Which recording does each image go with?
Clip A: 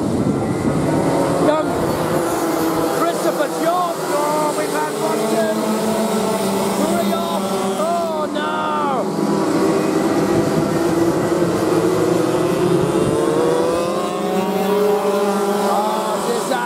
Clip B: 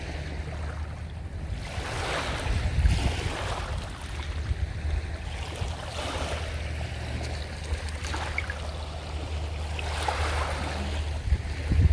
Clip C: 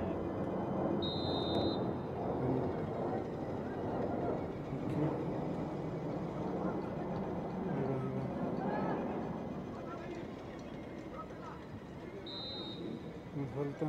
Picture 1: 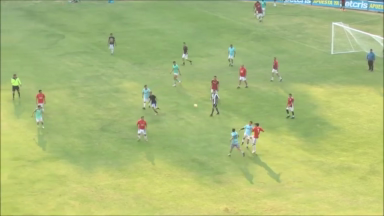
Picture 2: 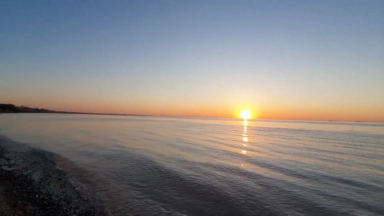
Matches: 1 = C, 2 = B